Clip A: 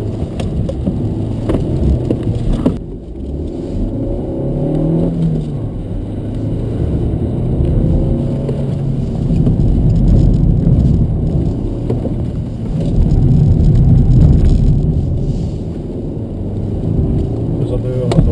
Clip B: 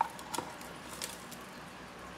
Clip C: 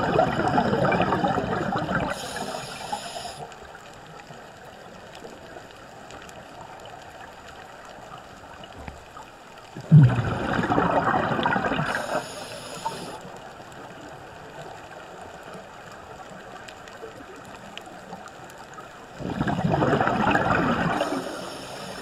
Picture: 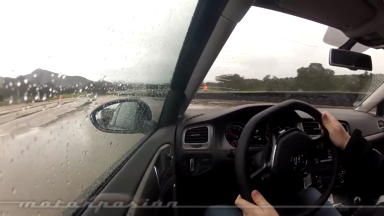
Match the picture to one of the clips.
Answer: A